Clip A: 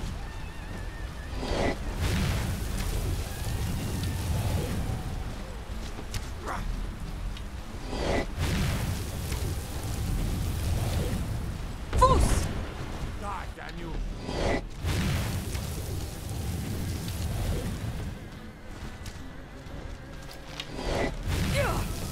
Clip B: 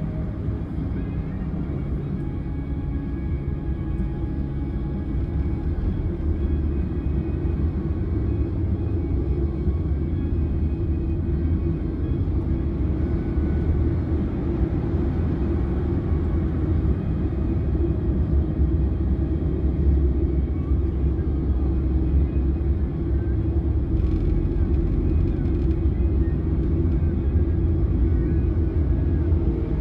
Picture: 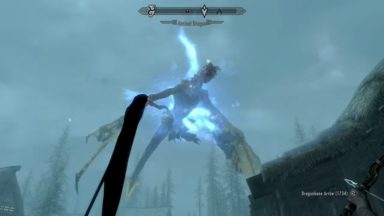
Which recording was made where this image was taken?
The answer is A